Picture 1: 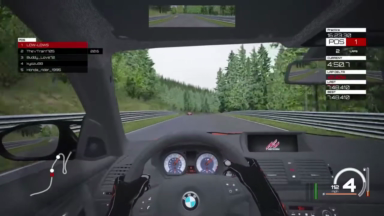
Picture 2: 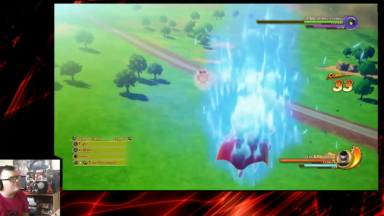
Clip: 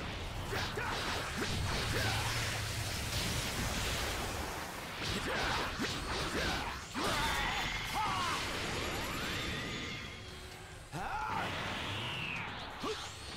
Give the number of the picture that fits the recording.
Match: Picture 2